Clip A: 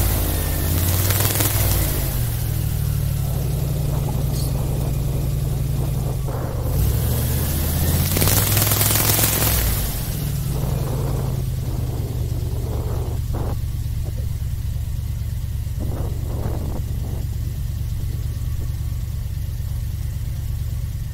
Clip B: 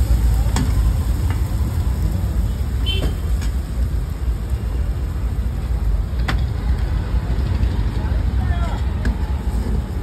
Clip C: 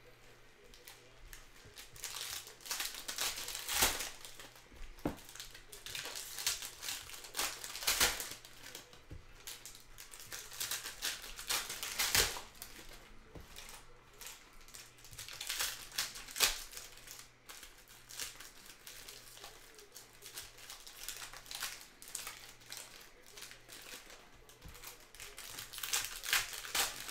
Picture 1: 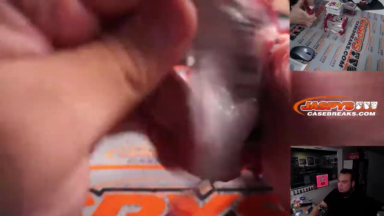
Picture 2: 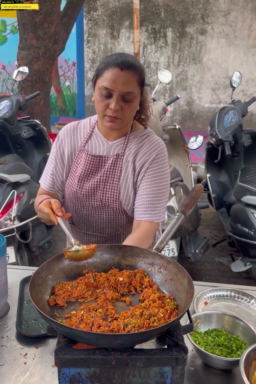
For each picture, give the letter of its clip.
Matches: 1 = C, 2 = B